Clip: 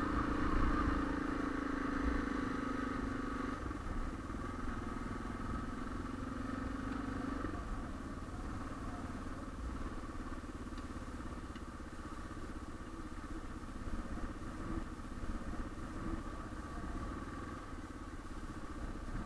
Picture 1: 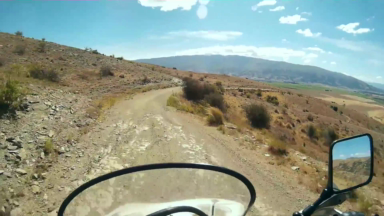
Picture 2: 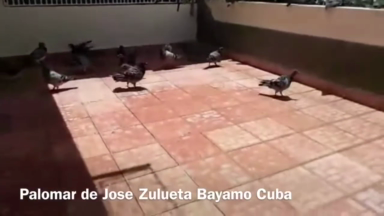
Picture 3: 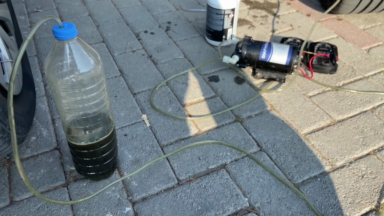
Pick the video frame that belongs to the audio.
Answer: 1